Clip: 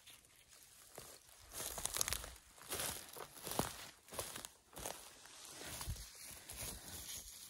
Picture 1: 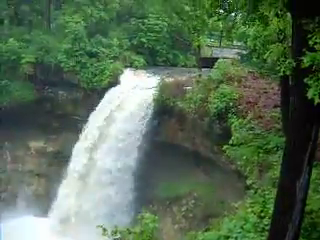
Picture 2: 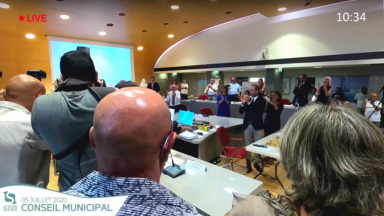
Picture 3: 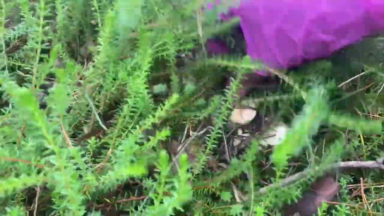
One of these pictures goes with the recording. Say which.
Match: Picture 3